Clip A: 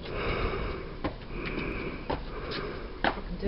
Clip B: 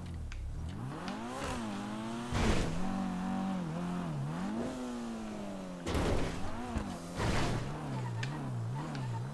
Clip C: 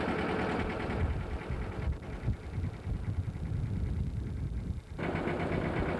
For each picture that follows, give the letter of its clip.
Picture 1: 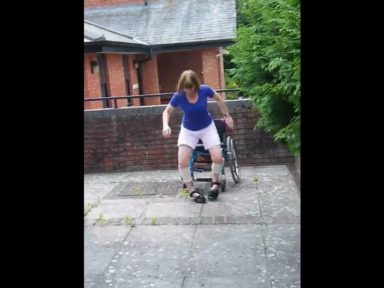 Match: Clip A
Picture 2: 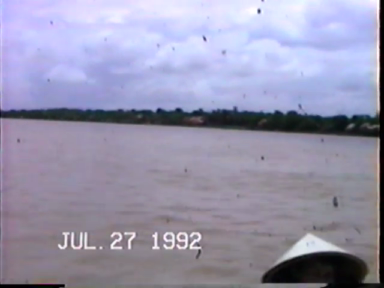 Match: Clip C